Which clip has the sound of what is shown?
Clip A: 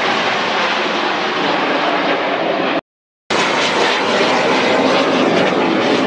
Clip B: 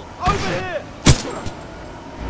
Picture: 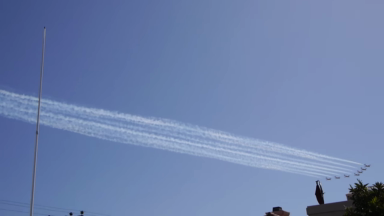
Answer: A